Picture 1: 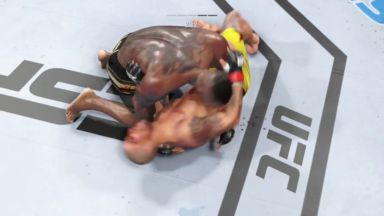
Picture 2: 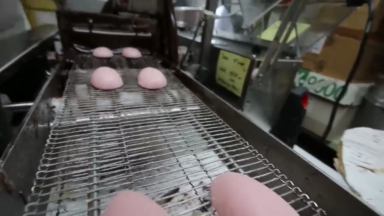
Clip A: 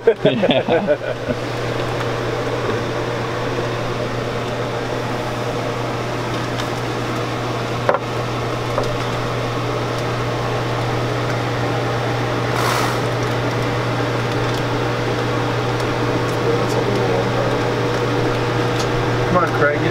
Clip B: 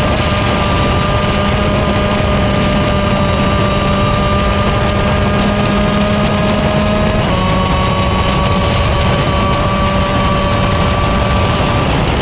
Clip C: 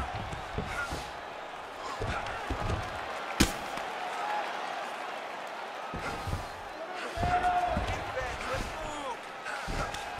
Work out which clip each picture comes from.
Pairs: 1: C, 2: A